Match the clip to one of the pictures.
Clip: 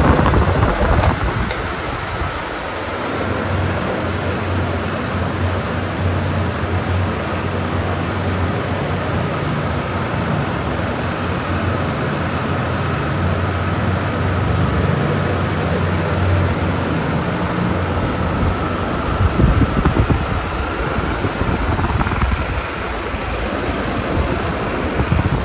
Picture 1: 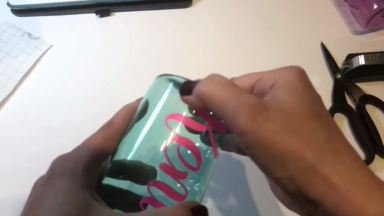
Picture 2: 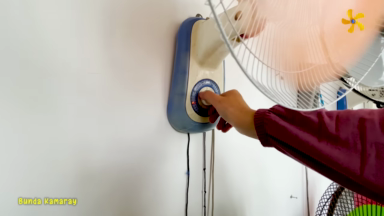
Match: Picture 2